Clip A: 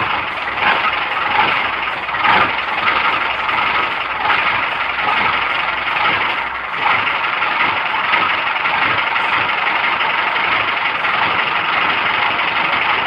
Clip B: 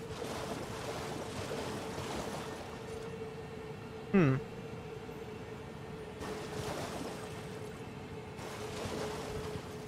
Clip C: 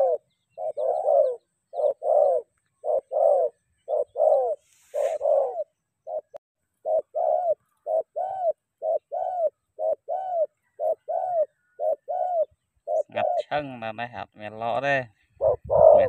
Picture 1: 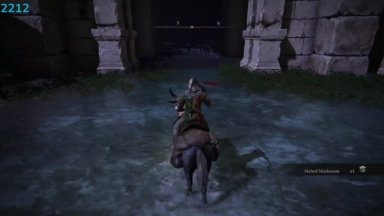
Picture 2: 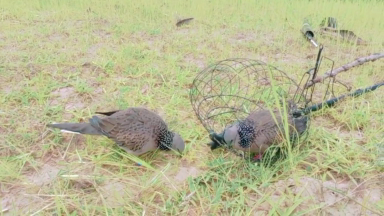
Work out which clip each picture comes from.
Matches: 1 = B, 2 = C